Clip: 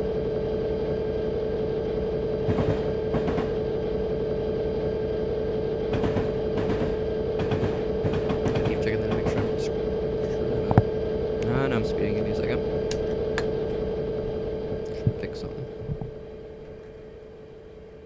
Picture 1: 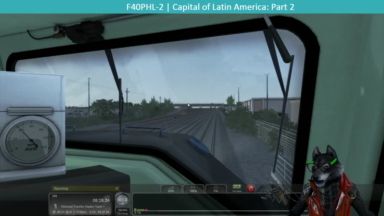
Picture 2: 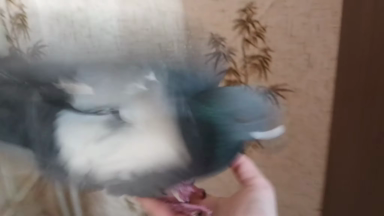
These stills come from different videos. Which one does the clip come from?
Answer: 1